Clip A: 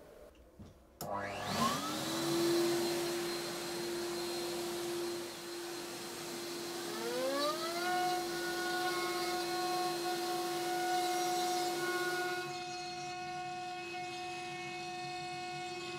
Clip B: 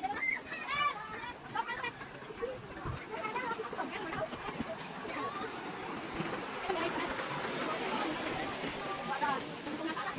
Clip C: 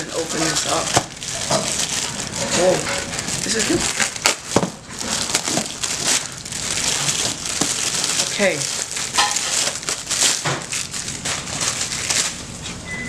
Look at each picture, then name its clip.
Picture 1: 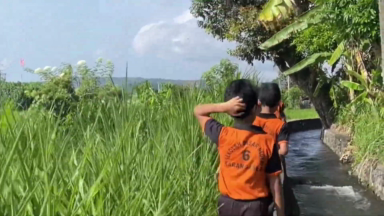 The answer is B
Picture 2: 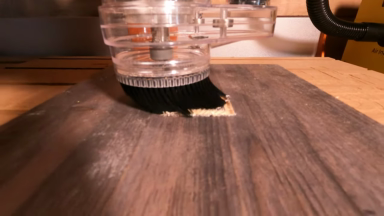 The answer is A